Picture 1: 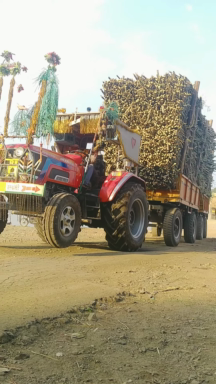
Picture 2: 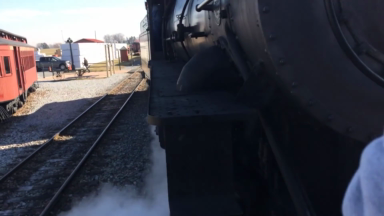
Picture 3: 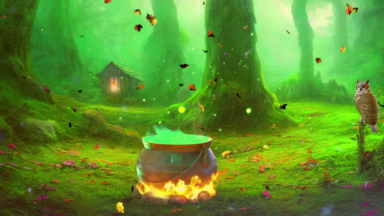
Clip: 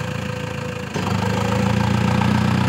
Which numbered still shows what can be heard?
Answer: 1